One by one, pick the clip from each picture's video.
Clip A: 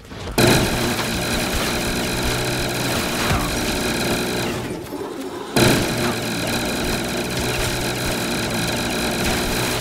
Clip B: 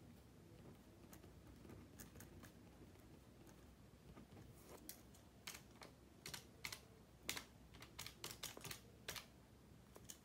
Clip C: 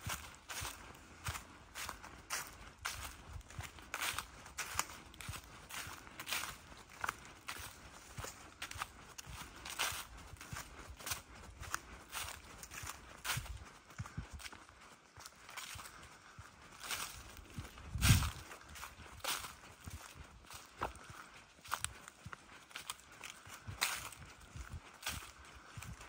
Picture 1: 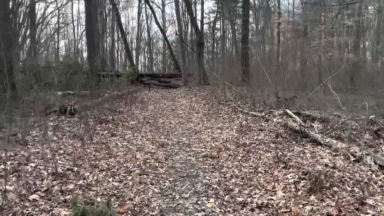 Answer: C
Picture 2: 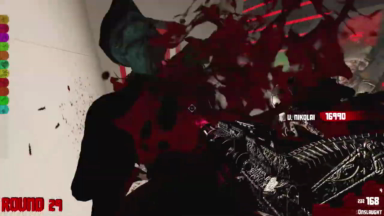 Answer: A